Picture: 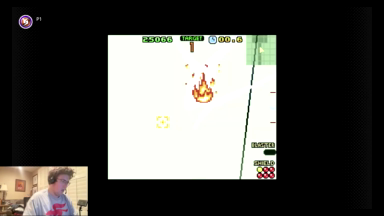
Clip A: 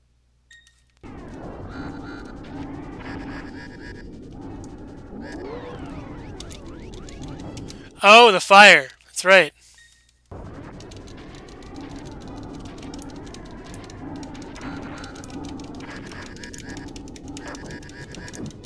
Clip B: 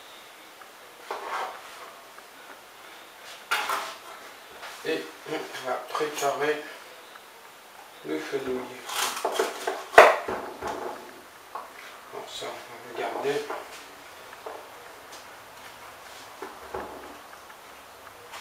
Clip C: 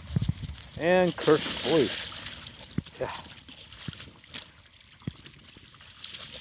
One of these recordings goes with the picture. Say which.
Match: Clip A